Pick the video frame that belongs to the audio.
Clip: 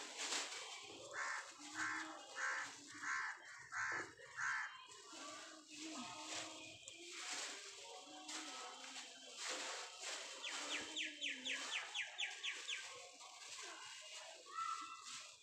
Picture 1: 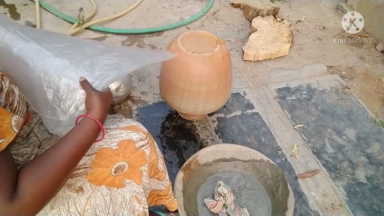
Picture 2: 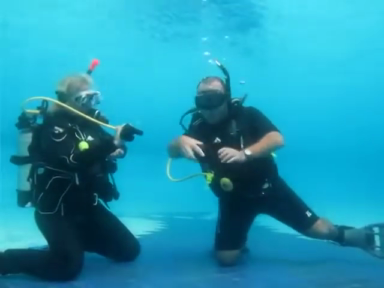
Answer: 1